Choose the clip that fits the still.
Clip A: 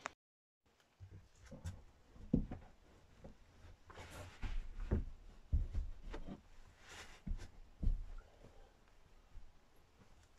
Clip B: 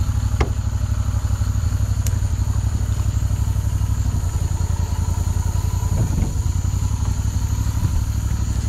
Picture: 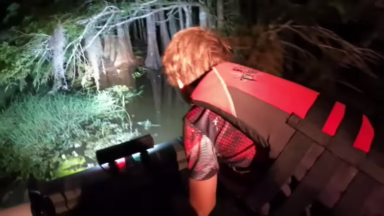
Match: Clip B